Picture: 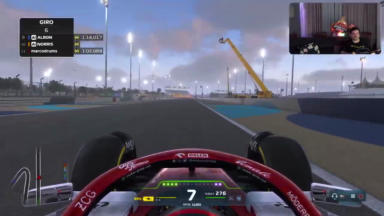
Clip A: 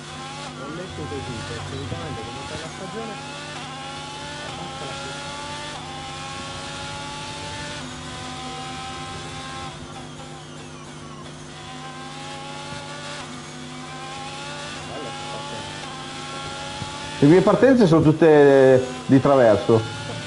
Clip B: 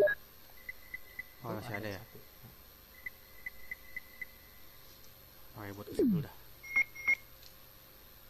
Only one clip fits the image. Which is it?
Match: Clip A